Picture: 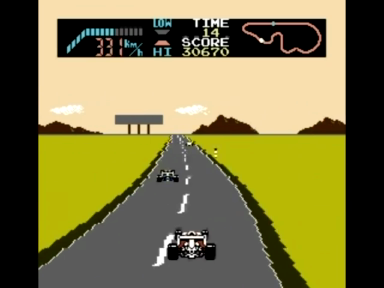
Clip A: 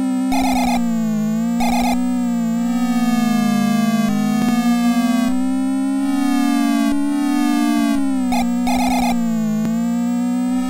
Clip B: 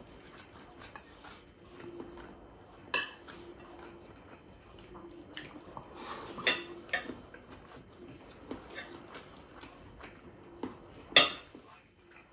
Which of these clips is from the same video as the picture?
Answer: A